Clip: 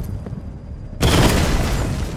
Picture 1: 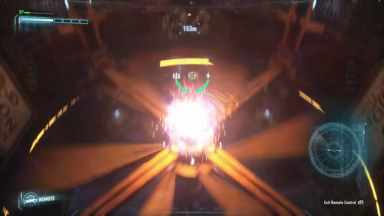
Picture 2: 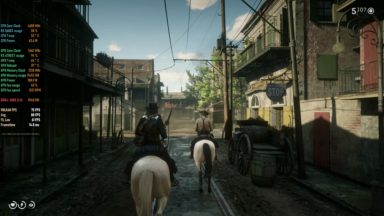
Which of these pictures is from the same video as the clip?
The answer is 1